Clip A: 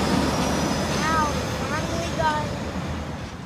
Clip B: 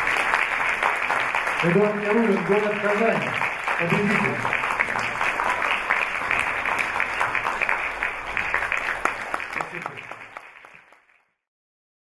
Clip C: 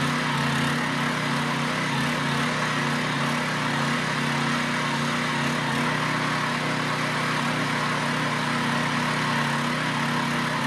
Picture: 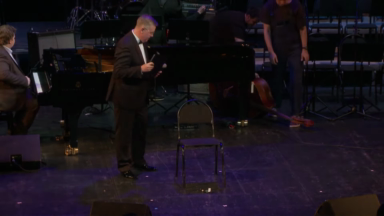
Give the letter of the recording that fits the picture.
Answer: B